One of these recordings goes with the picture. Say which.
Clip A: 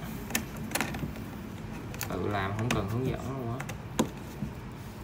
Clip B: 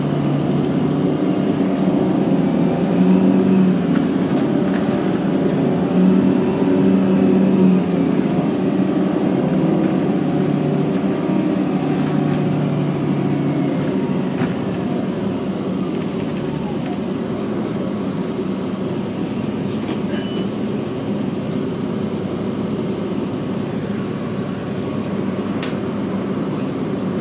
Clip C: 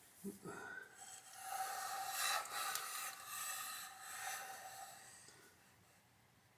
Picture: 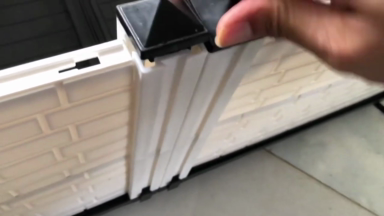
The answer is A